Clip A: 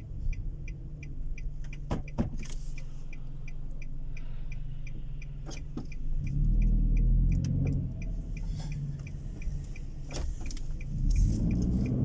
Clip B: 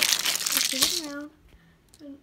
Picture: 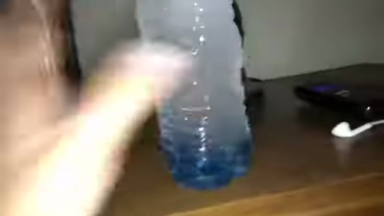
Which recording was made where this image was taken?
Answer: B